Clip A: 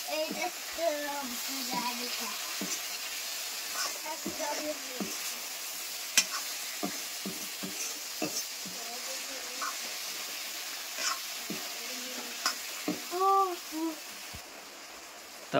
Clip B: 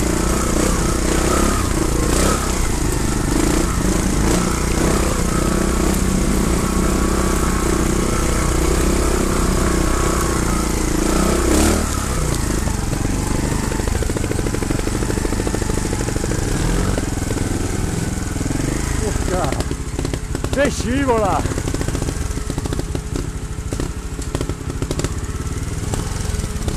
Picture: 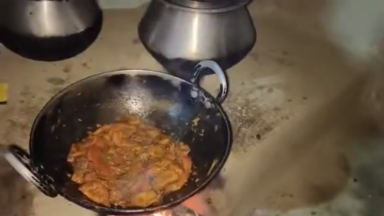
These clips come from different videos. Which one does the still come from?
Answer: A